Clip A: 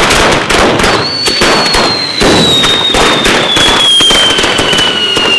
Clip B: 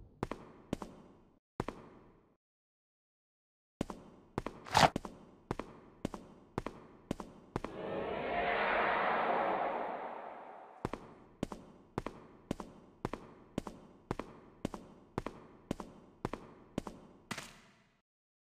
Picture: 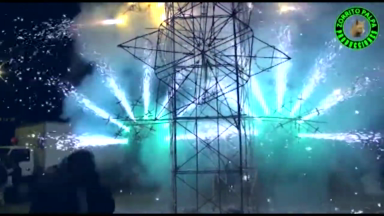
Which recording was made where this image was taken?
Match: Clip A